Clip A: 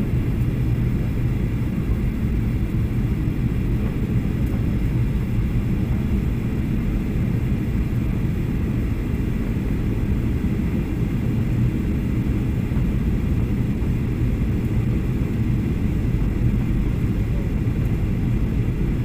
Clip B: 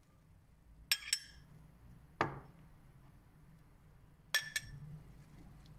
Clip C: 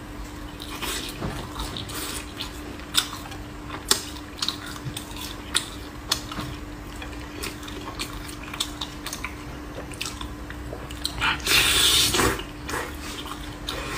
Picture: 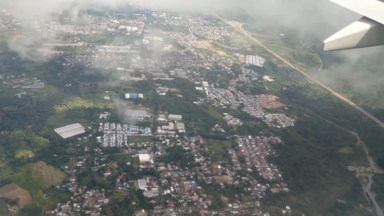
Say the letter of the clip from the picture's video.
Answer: A